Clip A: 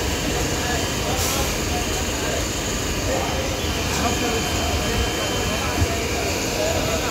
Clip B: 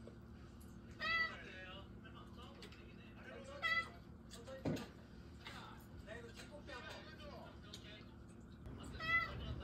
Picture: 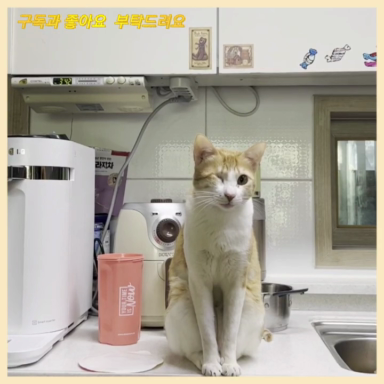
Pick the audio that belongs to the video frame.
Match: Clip B